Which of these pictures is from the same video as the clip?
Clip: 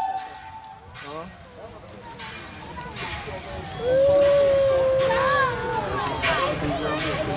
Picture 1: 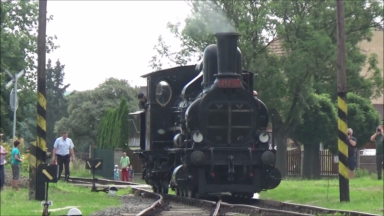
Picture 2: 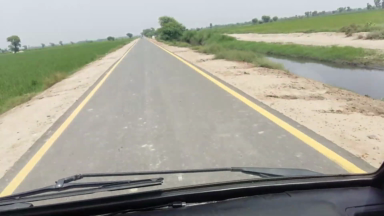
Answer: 1